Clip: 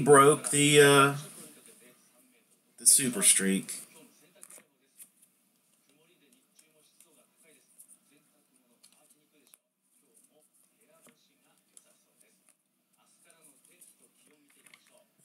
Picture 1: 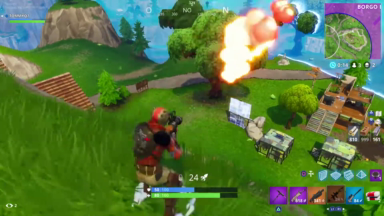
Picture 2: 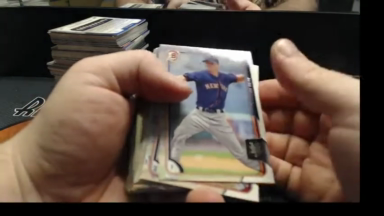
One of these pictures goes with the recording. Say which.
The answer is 2